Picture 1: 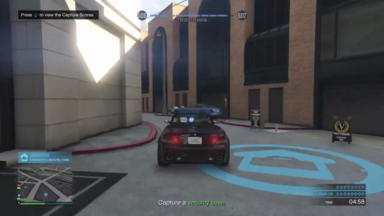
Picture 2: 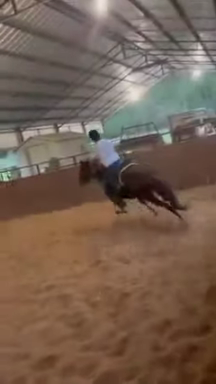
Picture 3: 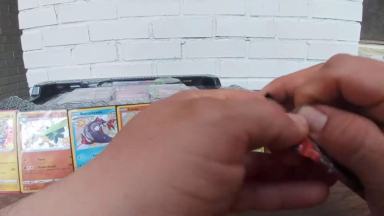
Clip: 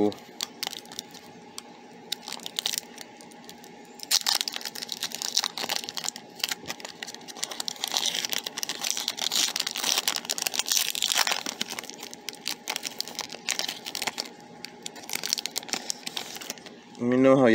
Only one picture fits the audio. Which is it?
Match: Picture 3